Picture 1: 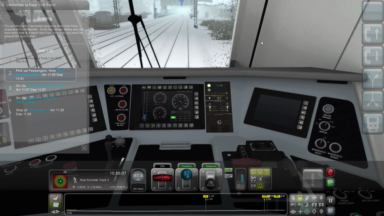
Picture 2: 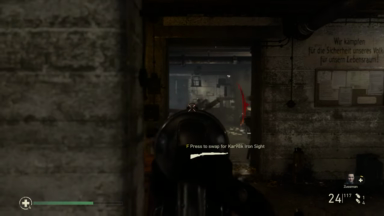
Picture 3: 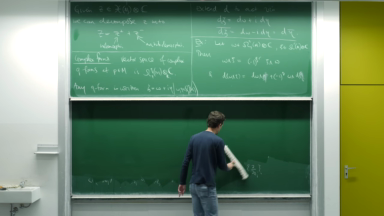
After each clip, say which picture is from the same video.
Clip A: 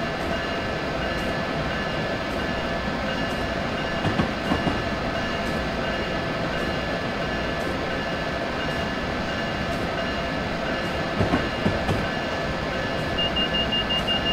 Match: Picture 1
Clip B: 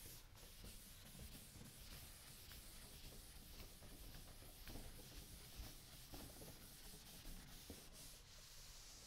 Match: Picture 3